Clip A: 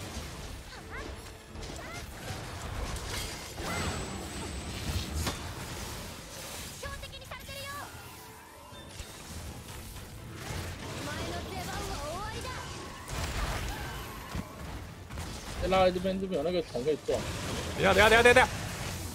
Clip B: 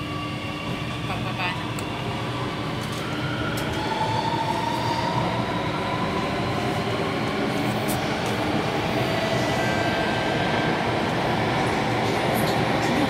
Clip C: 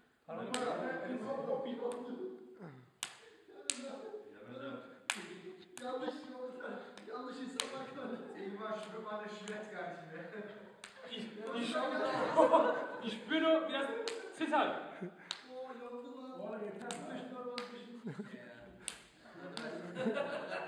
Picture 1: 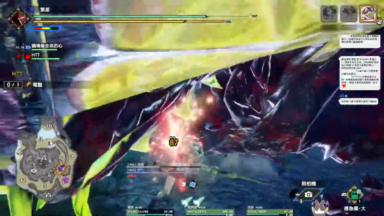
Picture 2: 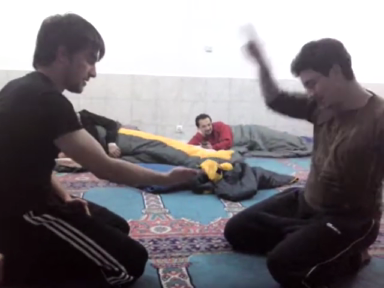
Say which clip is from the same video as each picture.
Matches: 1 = A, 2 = C